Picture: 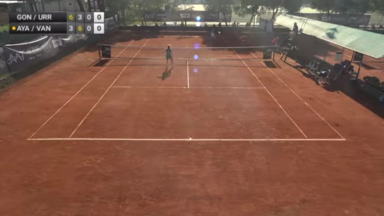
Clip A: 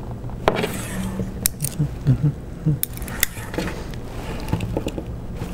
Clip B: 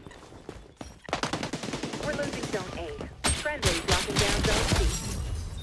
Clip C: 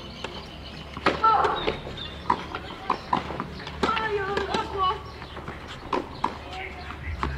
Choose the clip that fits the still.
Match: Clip C